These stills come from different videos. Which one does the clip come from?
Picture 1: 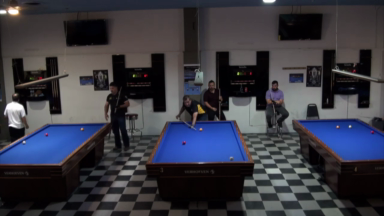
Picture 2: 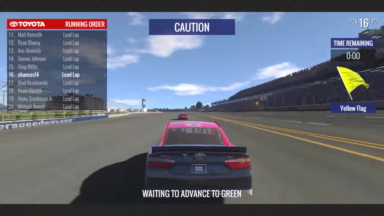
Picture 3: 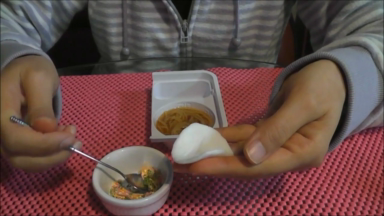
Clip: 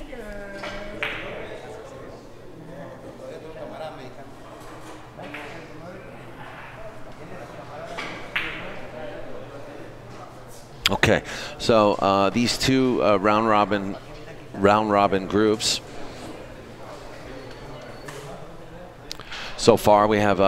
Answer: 1